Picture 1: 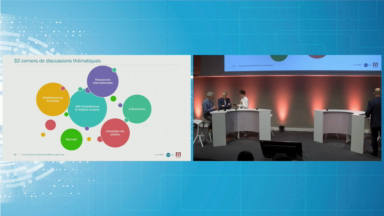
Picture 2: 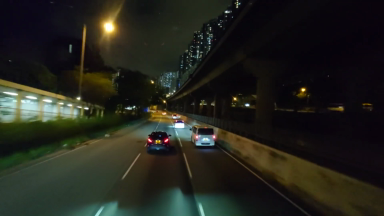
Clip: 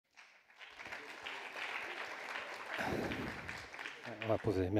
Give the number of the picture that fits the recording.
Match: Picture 1